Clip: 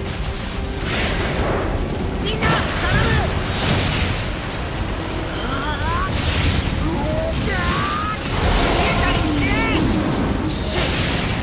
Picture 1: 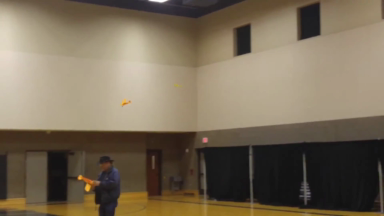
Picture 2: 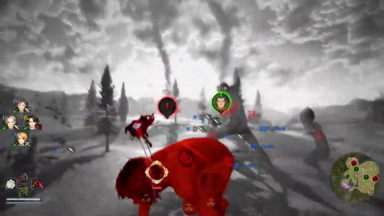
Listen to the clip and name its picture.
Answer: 2